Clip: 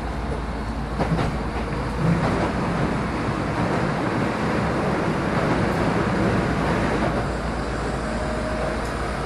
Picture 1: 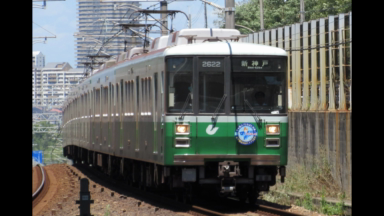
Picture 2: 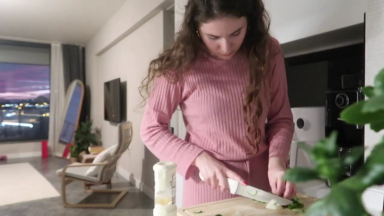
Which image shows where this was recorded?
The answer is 1